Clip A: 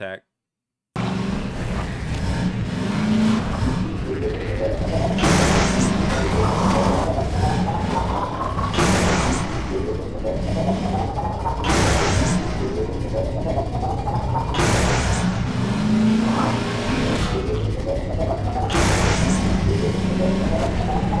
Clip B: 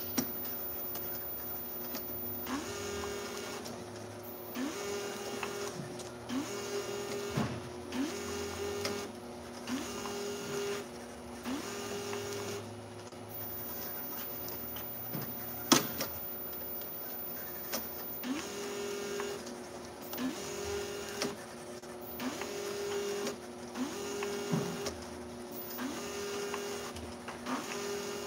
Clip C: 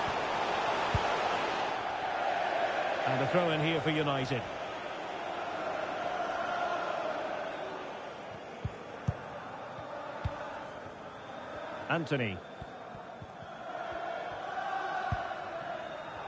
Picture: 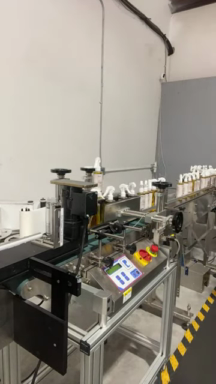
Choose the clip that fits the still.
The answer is B